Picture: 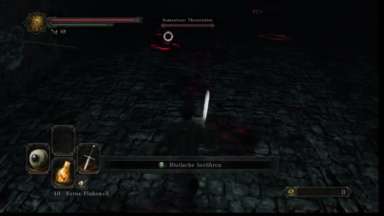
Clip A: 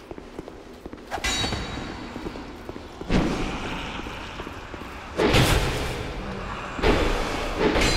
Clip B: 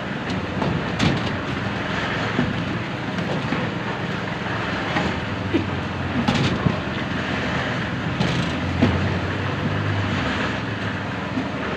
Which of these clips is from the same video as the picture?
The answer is A